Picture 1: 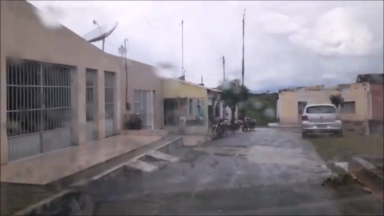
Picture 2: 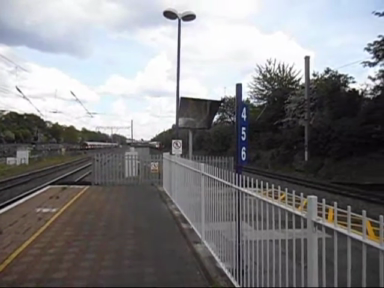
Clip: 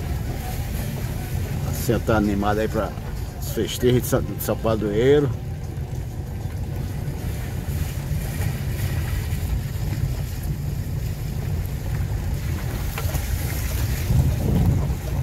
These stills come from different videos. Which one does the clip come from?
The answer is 1